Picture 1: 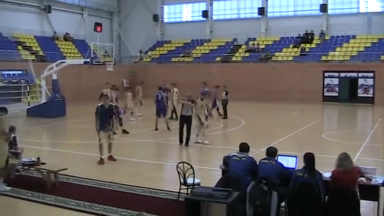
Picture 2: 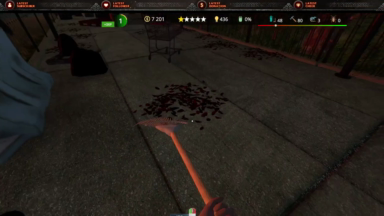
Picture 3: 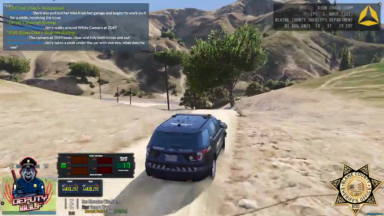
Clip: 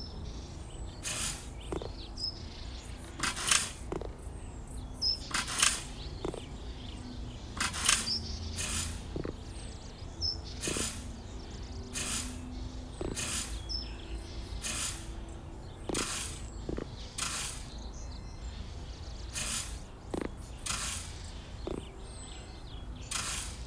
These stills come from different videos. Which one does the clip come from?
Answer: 2